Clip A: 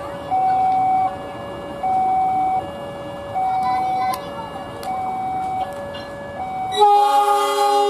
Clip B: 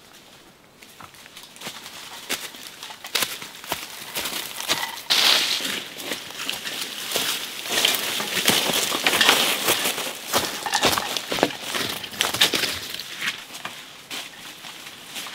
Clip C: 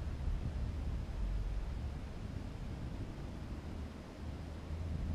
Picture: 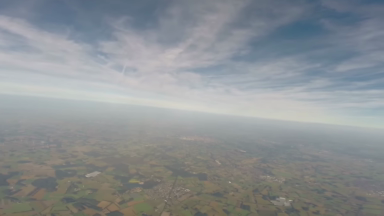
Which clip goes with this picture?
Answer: C